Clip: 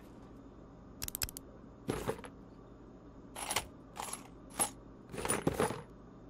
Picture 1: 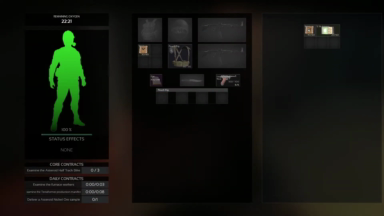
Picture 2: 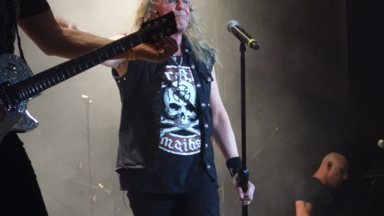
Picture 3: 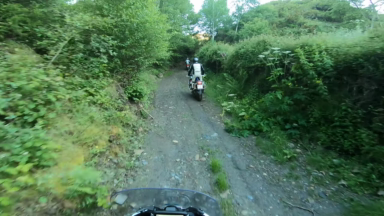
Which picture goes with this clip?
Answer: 1